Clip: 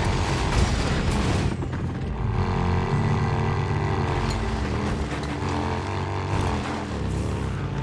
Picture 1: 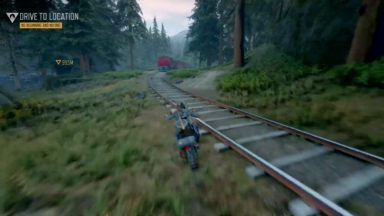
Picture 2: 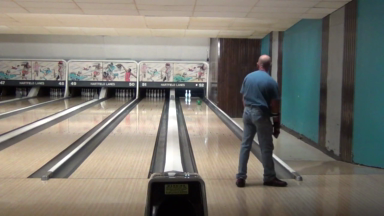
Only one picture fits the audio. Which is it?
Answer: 1